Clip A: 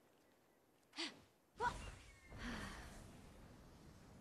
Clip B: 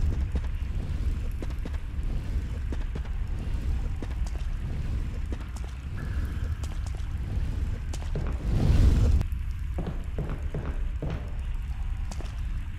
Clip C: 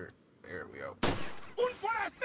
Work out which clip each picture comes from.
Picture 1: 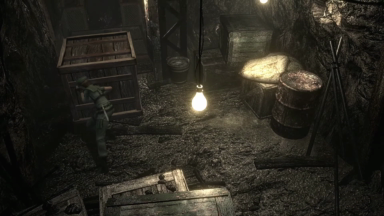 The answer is B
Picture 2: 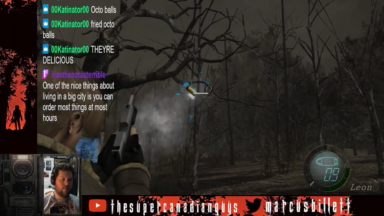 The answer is C